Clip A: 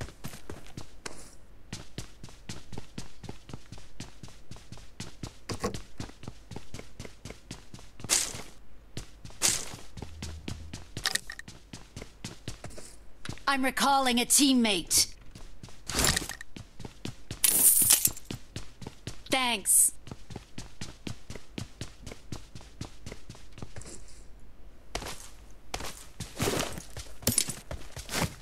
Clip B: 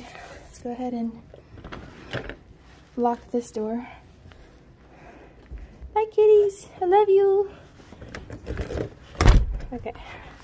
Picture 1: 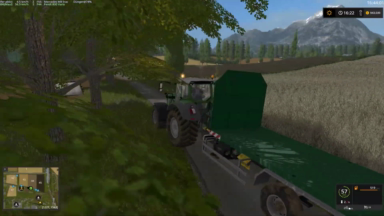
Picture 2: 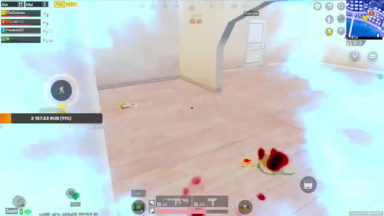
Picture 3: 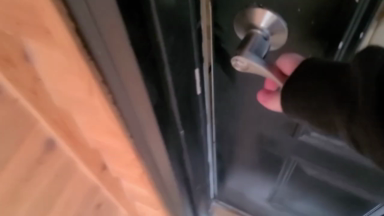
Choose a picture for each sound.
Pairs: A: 2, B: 3